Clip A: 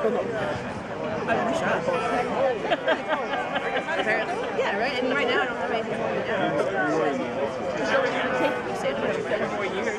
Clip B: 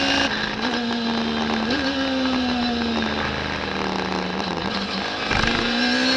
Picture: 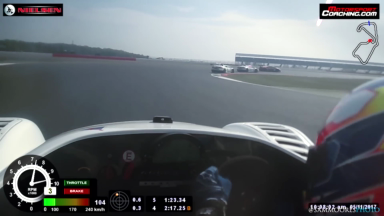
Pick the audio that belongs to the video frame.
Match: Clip B